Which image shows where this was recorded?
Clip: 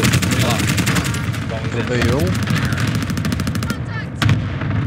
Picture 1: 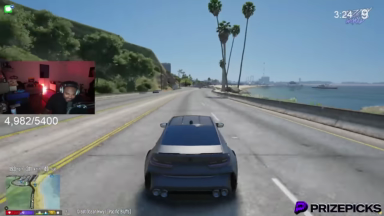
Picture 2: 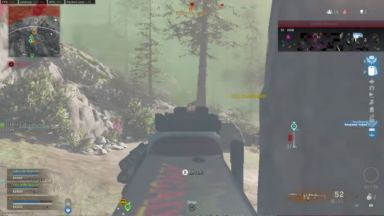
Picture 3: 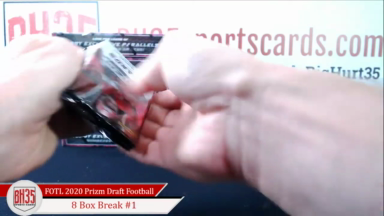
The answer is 2